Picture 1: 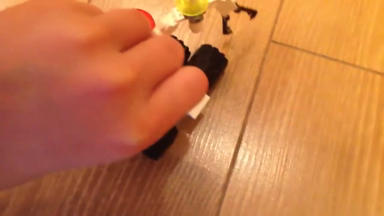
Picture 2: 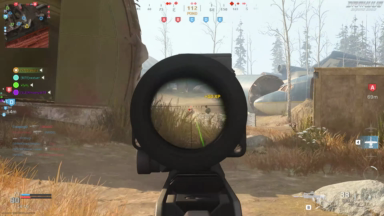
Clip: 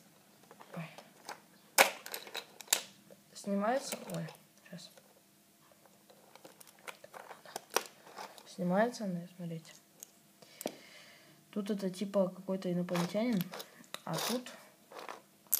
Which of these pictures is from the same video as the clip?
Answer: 1